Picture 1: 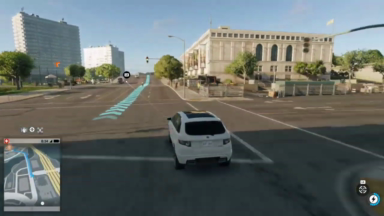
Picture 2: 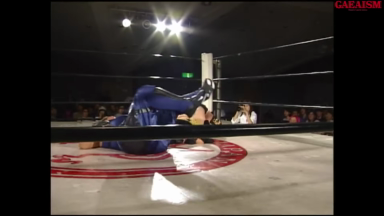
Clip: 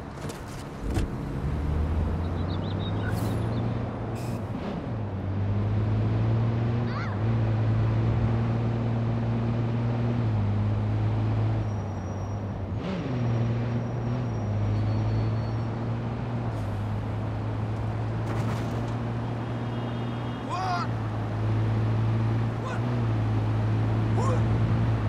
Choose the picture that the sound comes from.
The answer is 1